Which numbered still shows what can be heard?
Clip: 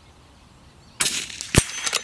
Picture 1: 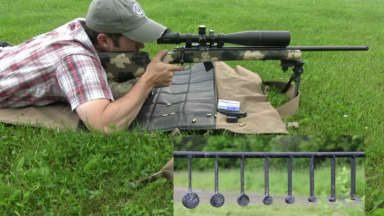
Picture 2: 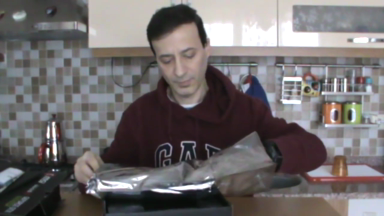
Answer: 1